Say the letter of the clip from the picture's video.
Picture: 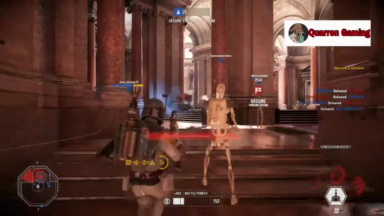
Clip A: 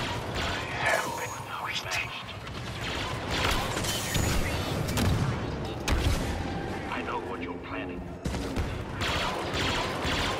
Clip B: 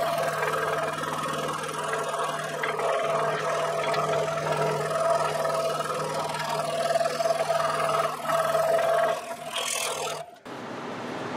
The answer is A